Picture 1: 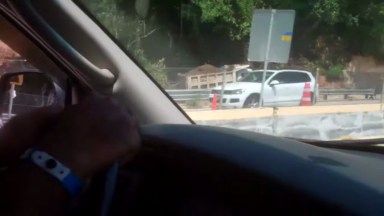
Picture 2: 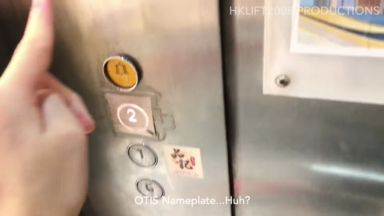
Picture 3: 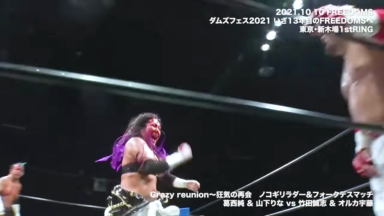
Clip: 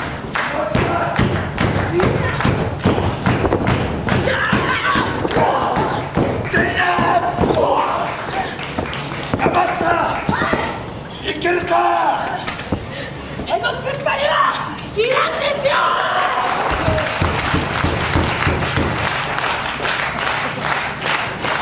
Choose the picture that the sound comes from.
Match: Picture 3